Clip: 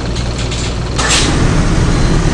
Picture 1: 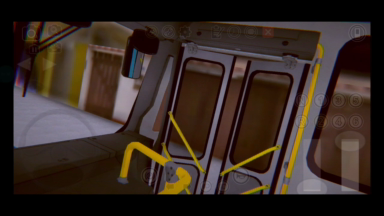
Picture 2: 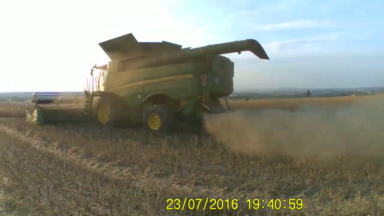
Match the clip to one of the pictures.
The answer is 1